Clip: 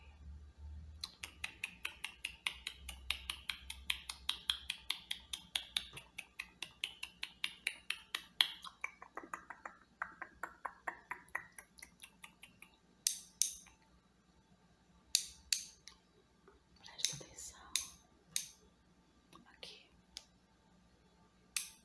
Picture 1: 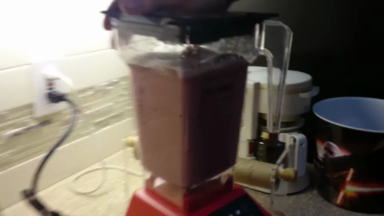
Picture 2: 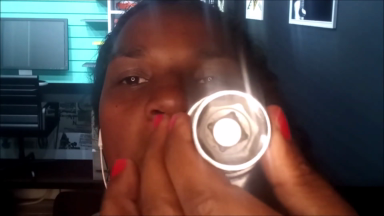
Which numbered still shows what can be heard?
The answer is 2